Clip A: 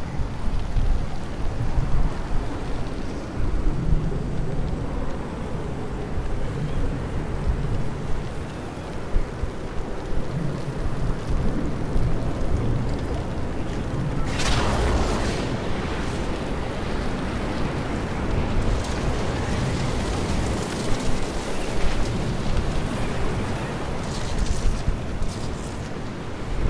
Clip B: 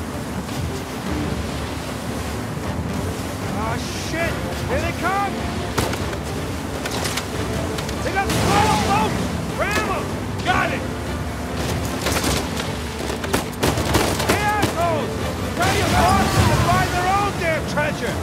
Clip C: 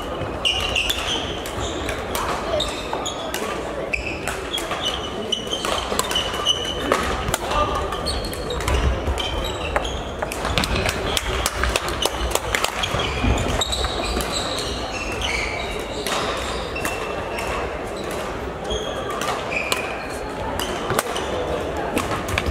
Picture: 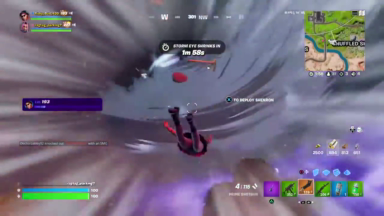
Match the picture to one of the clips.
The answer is A